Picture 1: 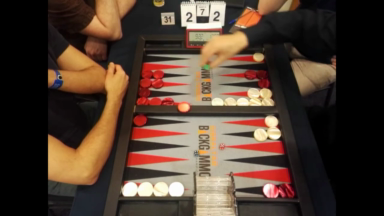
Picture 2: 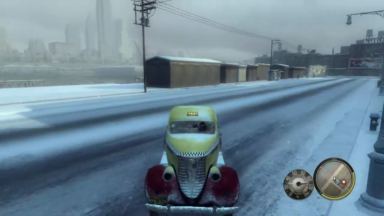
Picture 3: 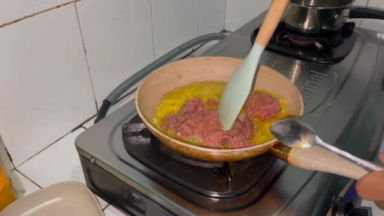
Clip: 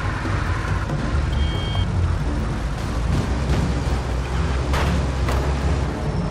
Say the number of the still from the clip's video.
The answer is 2